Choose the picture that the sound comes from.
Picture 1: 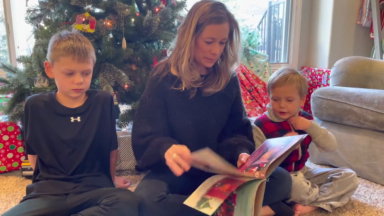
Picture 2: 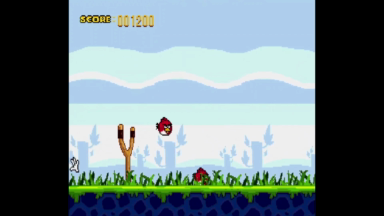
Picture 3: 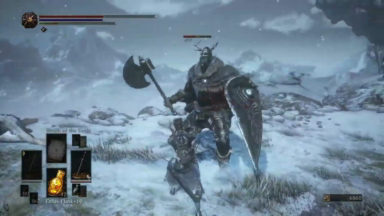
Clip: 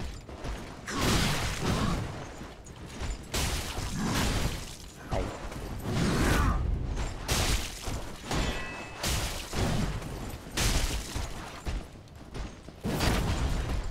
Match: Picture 3